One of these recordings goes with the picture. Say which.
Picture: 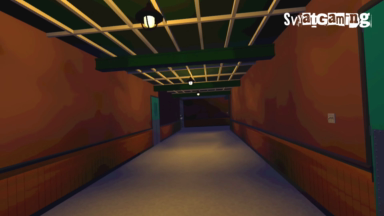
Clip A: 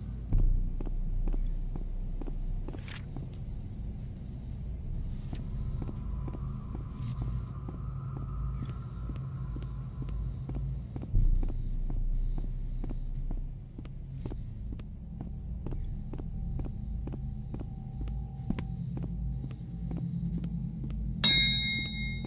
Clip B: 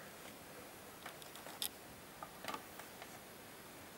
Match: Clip A